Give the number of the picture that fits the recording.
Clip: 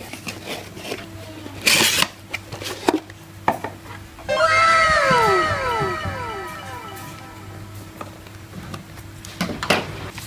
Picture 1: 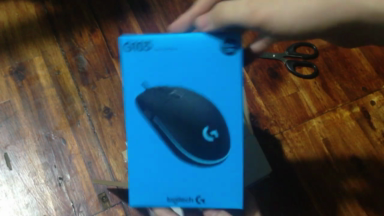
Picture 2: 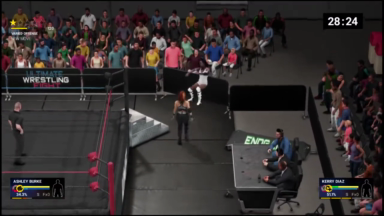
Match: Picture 1